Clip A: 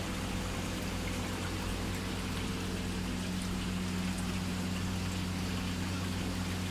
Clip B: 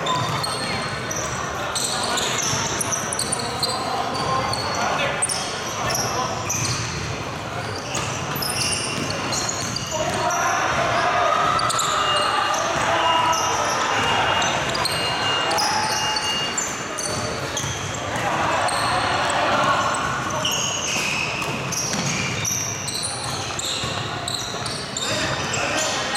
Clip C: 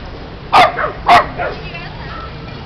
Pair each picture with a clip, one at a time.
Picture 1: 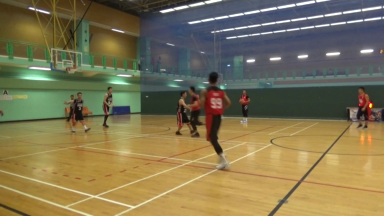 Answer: B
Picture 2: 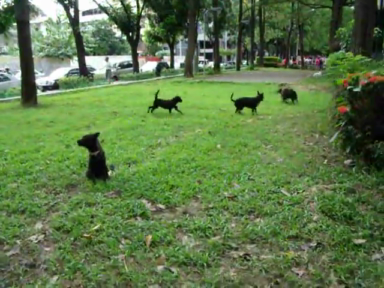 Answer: C